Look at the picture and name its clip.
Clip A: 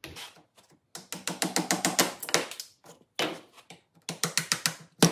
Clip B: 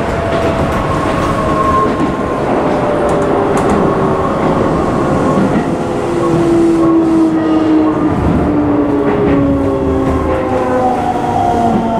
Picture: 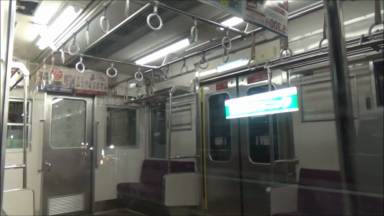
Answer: B